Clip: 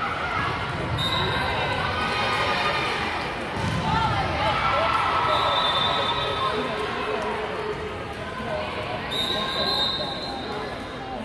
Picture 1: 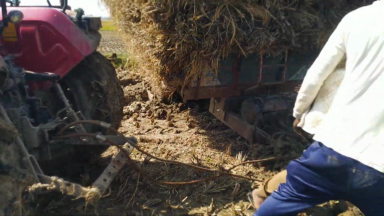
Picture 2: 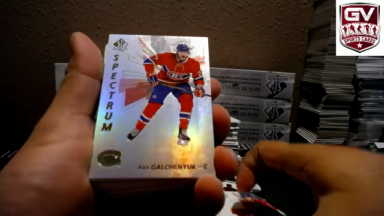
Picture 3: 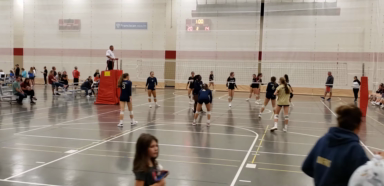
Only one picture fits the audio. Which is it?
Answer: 3